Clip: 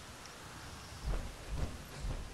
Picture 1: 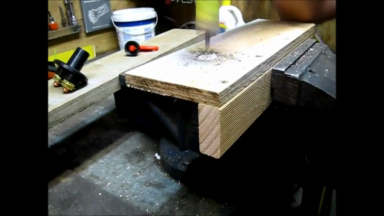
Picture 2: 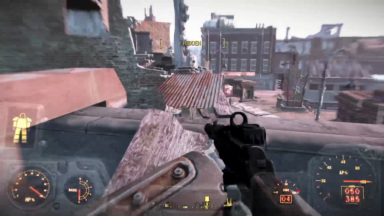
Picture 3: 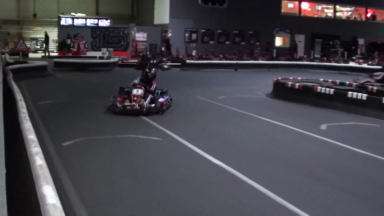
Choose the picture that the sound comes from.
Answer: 2